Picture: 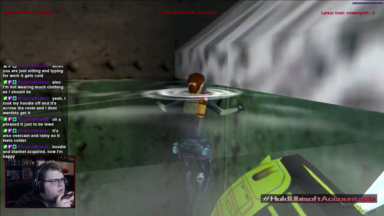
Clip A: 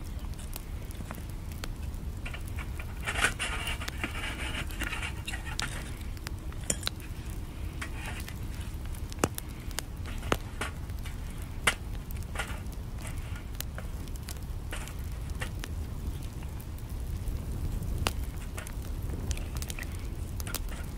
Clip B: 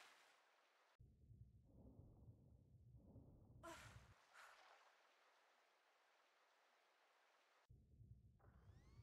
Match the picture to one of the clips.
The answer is B